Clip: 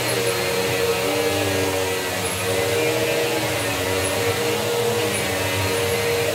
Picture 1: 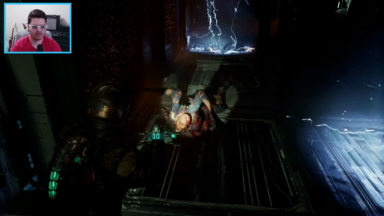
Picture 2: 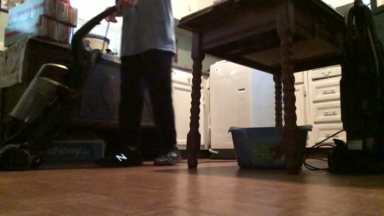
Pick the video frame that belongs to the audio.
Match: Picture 2